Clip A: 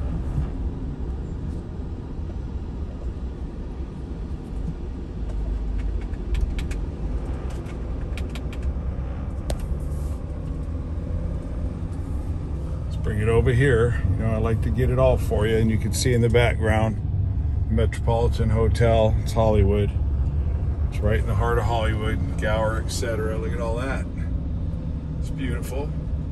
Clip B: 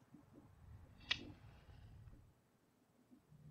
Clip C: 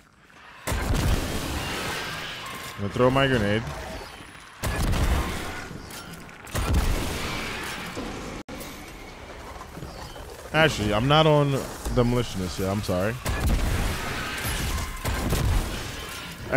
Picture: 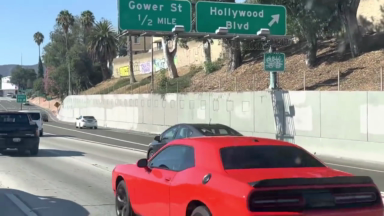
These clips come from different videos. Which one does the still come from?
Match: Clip A